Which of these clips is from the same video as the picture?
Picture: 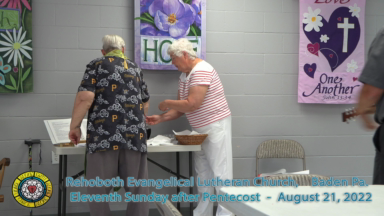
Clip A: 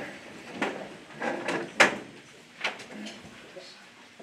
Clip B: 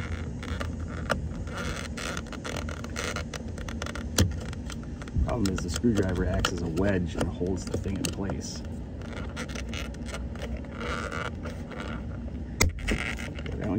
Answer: A